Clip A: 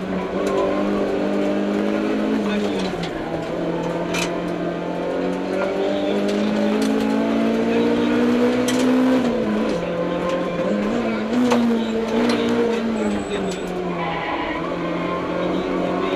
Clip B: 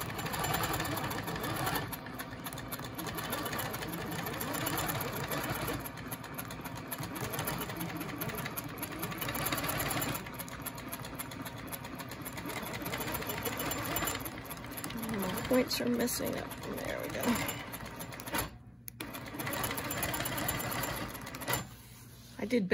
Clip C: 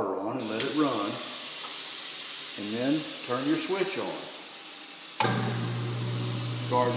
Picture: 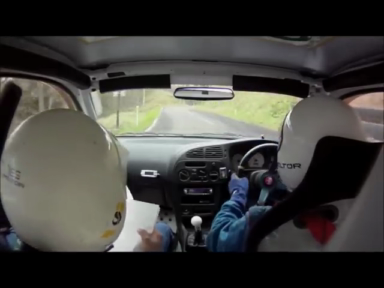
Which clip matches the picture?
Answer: A